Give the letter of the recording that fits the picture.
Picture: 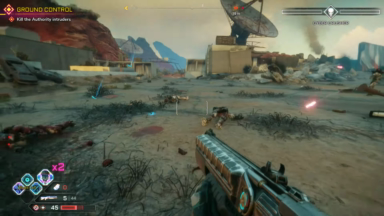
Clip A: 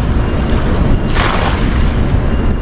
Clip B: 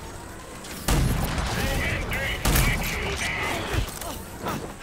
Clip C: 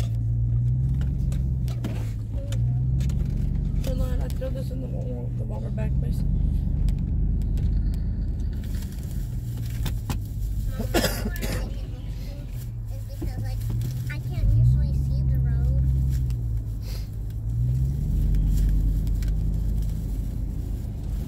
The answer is B